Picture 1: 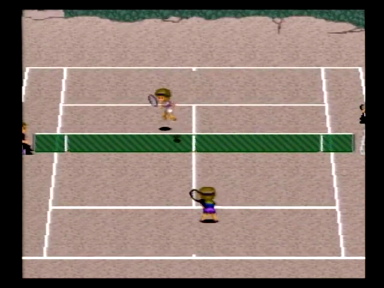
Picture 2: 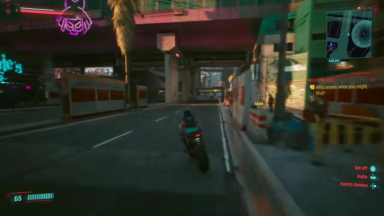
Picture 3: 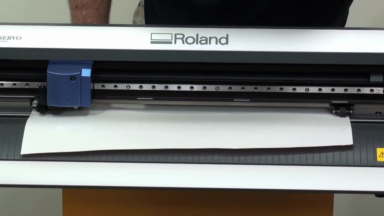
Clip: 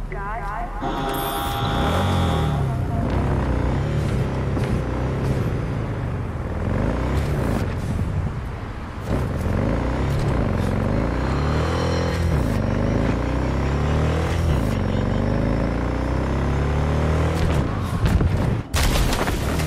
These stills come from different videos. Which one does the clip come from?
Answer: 2